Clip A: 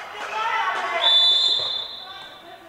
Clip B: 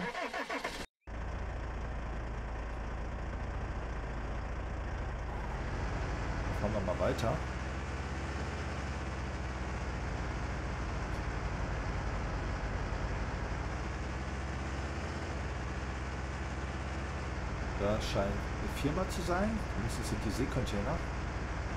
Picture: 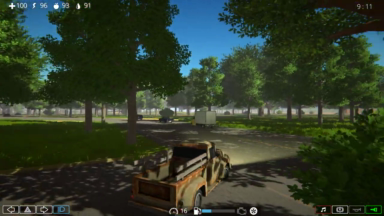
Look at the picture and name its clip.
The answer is B